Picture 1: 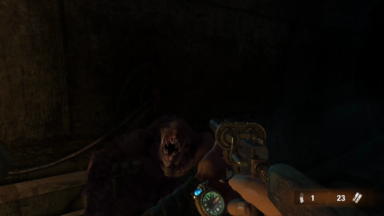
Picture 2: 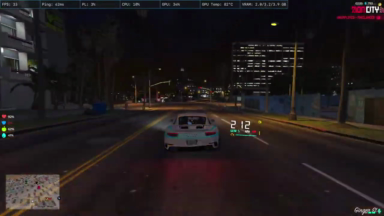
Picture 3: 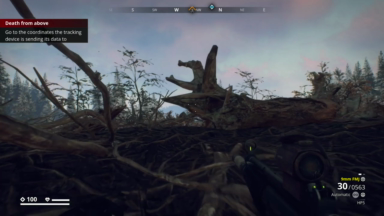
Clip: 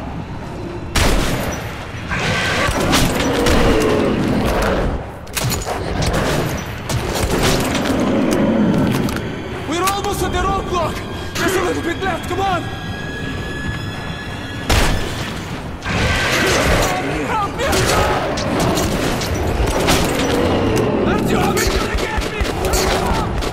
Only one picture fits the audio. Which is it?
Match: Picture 1